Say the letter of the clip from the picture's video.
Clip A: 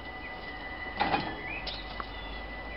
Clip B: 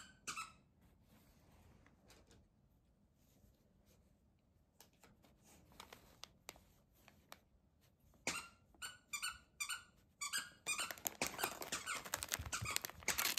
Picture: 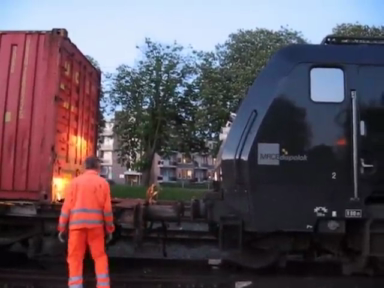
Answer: A